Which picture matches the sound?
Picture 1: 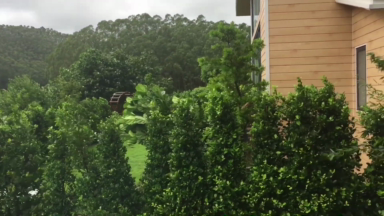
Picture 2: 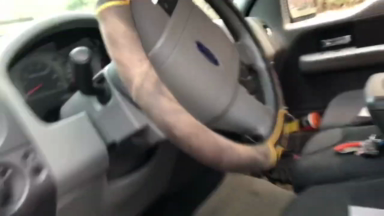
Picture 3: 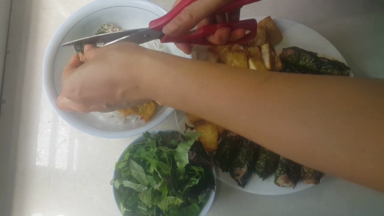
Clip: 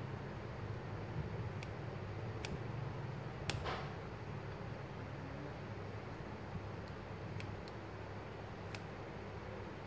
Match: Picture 3